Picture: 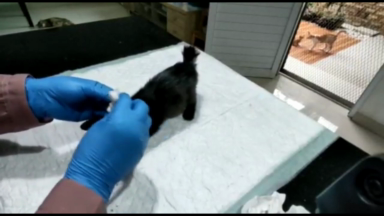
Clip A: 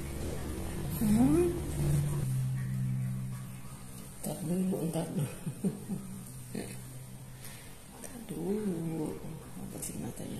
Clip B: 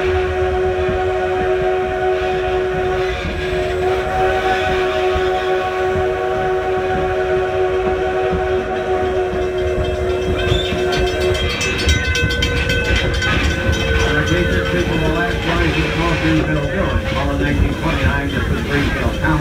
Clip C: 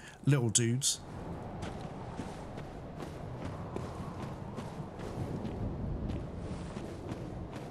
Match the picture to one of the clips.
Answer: A